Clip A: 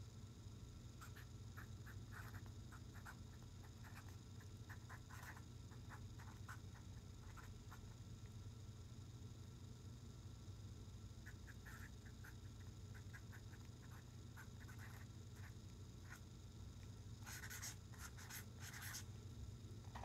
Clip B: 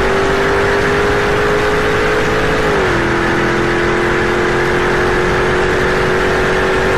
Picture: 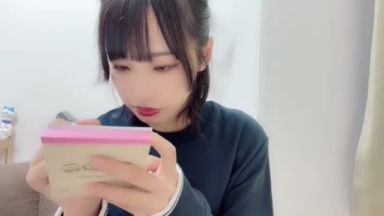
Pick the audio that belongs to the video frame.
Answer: A